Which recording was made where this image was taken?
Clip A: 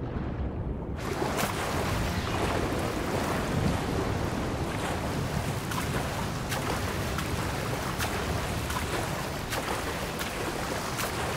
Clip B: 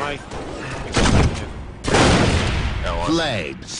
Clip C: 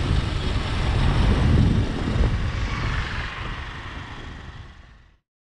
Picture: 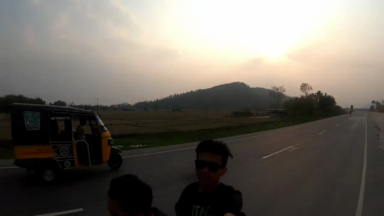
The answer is C